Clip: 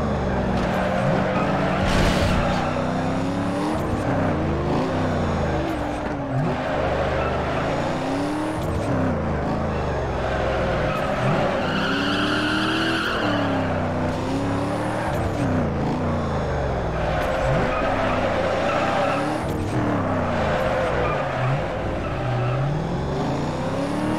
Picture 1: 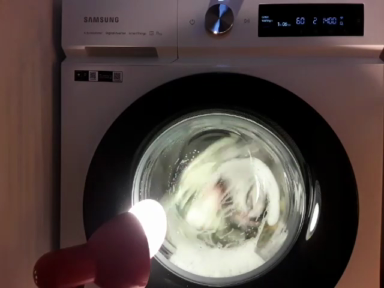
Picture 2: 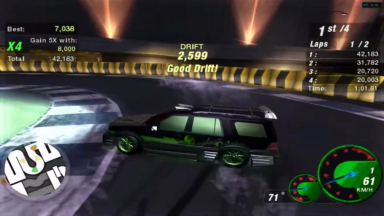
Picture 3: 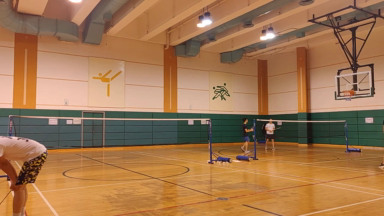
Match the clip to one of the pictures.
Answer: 2